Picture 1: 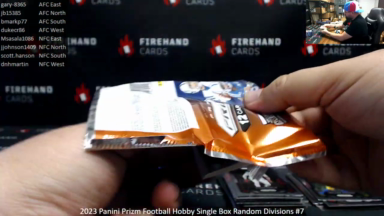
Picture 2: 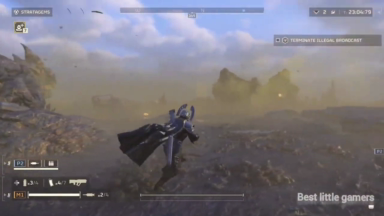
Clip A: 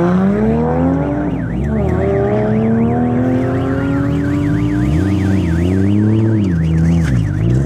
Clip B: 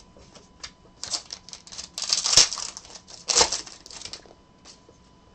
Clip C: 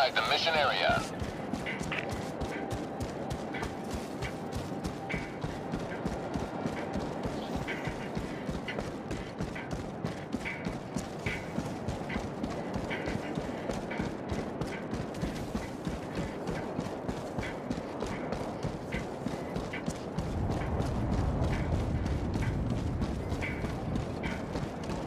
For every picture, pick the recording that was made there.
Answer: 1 B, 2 C